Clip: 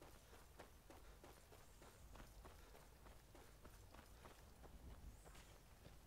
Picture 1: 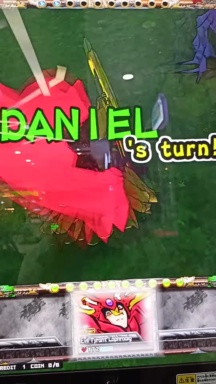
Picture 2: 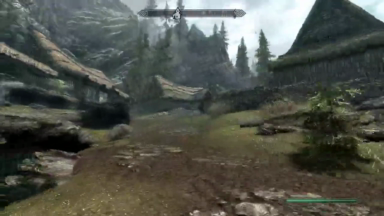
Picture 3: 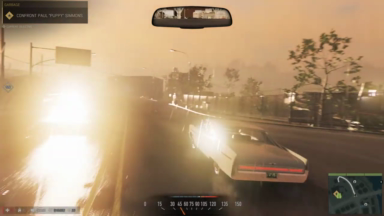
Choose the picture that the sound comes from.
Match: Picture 2